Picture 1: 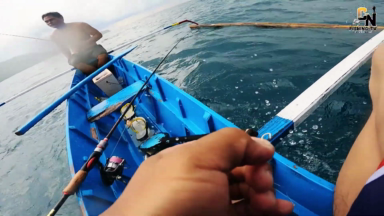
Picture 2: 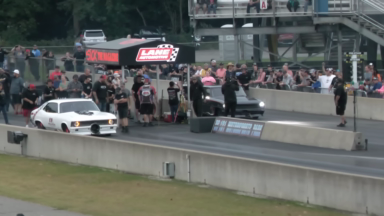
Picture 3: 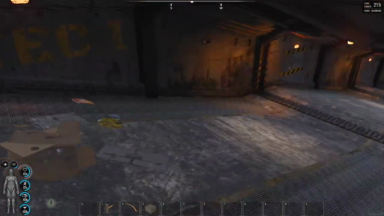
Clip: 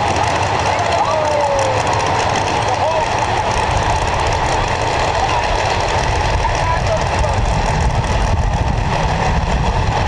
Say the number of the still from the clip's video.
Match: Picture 2